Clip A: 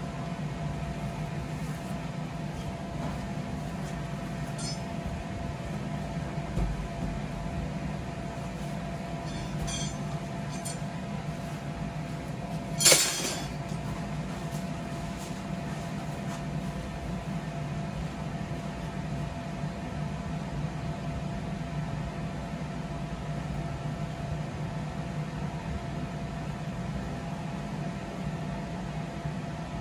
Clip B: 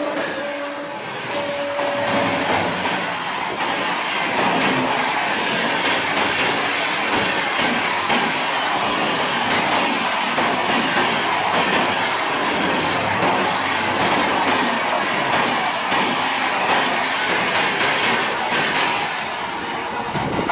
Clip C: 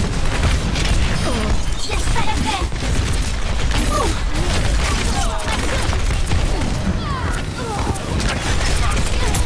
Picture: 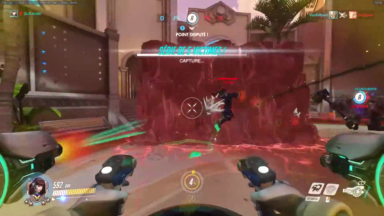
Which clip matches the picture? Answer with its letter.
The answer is C